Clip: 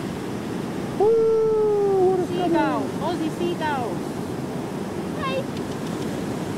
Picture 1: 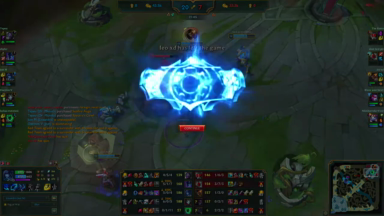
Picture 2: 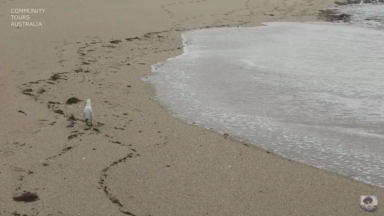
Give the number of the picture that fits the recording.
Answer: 2